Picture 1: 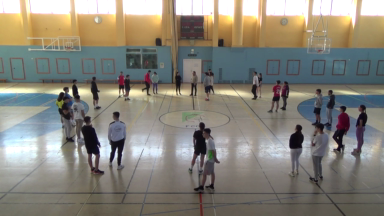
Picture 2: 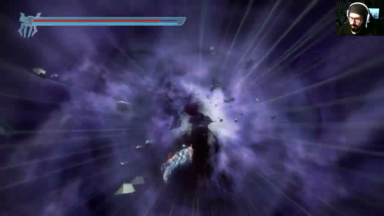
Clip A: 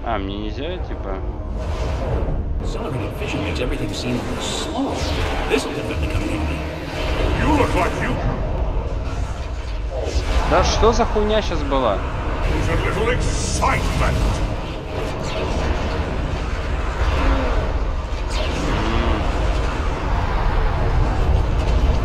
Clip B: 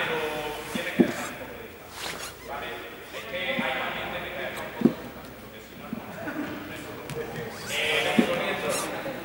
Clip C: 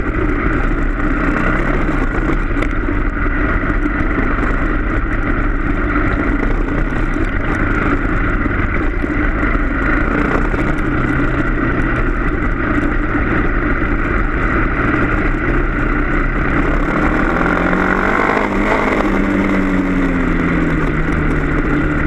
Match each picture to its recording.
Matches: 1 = B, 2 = A